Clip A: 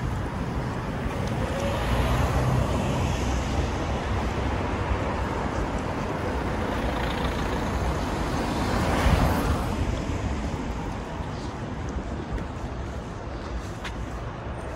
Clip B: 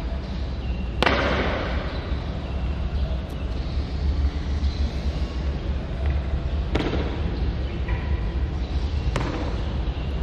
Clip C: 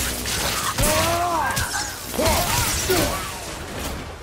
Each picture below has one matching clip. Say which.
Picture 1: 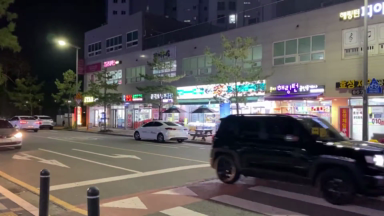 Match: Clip A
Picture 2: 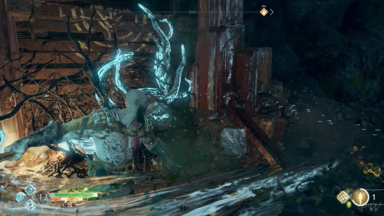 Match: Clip C